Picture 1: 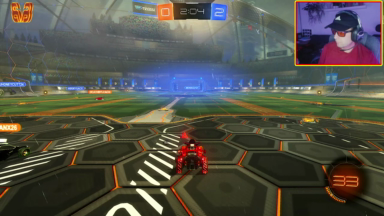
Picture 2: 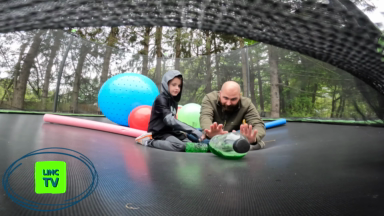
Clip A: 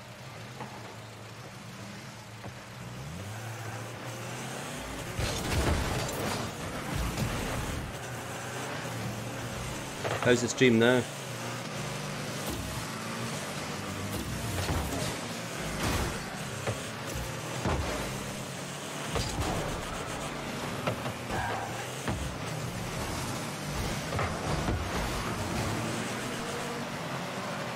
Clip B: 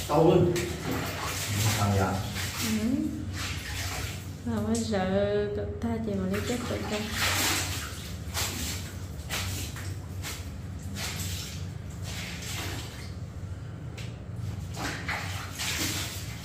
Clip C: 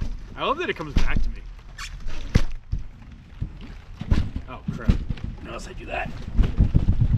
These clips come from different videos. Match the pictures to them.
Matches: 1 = A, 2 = C